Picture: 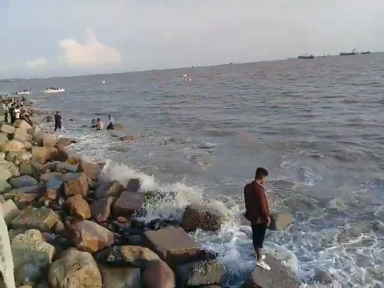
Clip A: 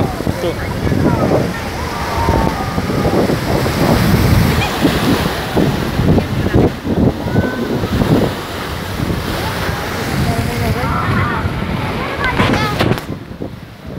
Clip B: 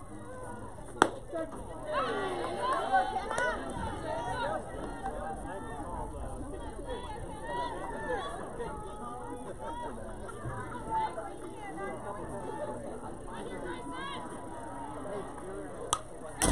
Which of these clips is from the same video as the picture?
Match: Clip A